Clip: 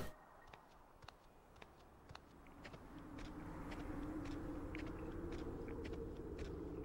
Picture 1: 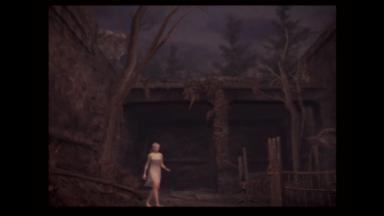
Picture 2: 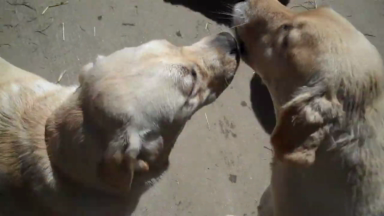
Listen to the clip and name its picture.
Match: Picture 1